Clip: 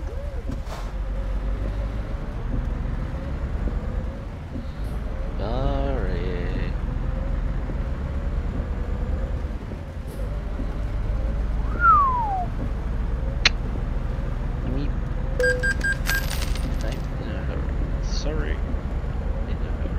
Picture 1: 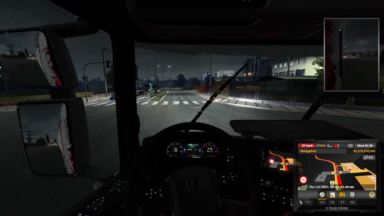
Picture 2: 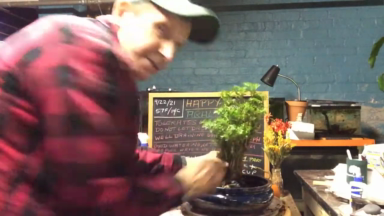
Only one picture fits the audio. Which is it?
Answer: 1